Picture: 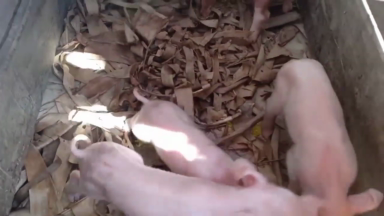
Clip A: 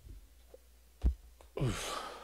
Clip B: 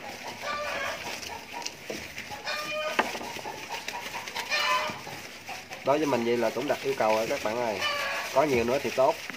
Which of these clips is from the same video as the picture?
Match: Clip B